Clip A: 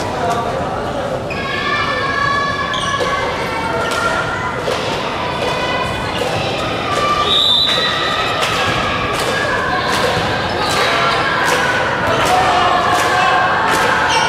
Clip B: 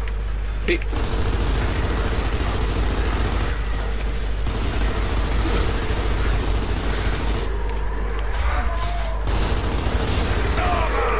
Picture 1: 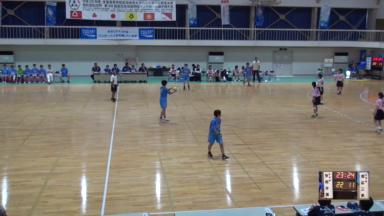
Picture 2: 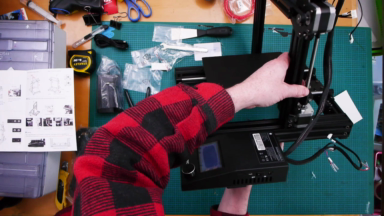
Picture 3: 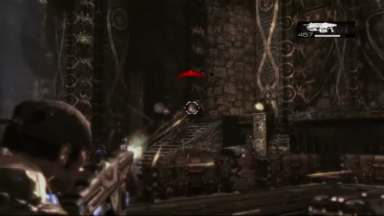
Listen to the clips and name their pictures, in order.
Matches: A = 1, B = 3